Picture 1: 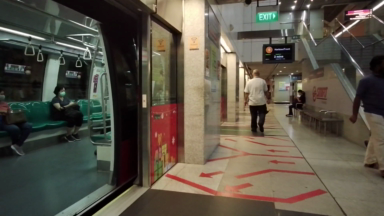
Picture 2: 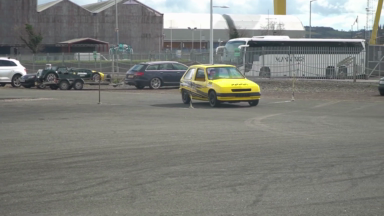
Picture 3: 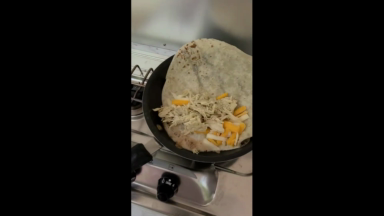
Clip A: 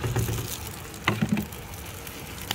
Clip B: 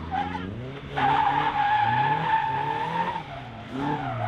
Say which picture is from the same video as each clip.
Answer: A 3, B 2